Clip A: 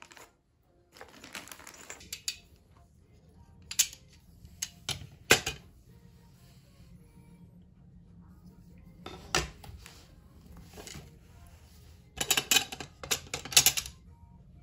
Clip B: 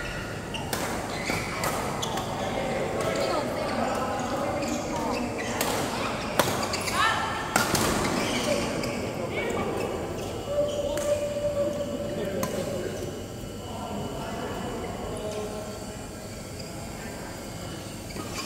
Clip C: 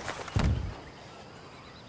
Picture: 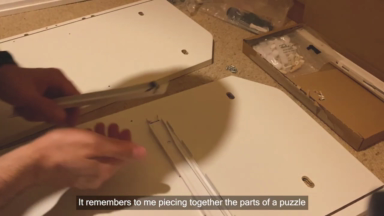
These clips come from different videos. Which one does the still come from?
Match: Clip A